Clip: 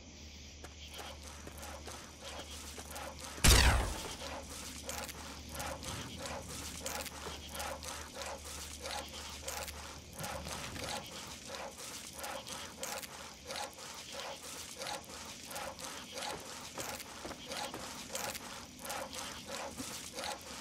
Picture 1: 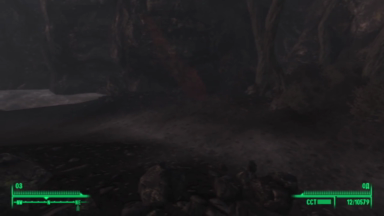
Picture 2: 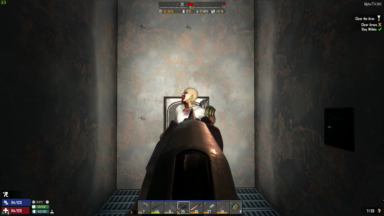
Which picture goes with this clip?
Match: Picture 1